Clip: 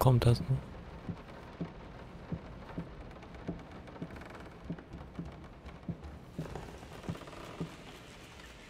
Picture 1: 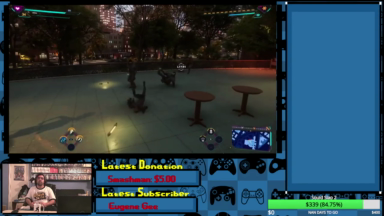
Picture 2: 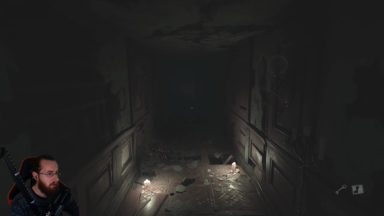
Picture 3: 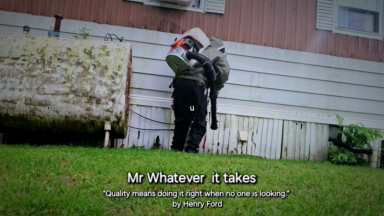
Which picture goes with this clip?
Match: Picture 2